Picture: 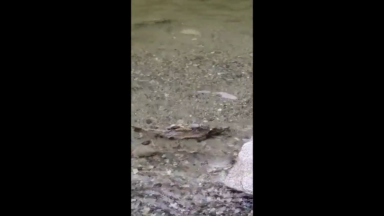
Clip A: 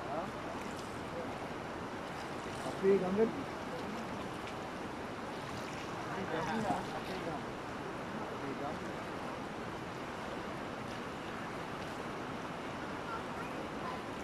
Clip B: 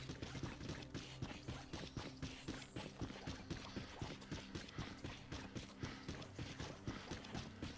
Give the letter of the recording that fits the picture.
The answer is A